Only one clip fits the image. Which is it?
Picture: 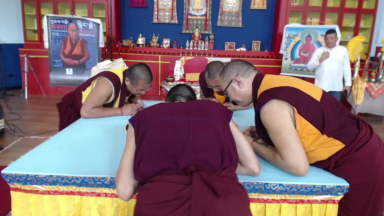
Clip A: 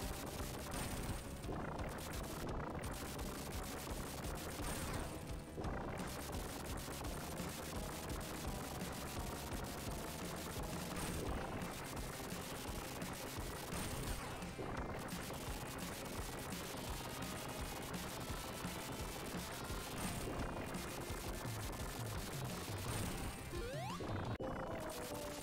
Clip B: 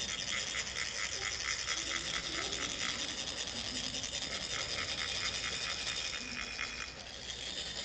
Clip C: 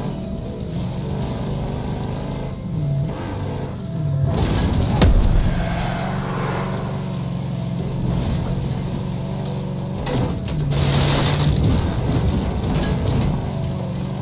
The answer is B